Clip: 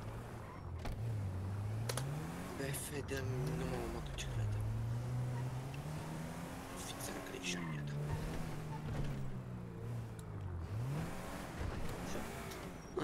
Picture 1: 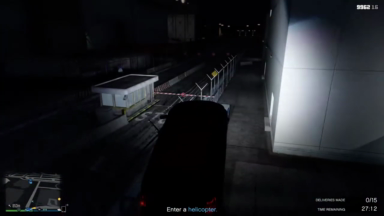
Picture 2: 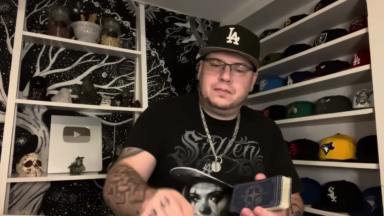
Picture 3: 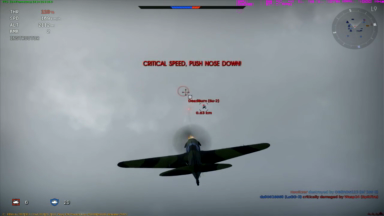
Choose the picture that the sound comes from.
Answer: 1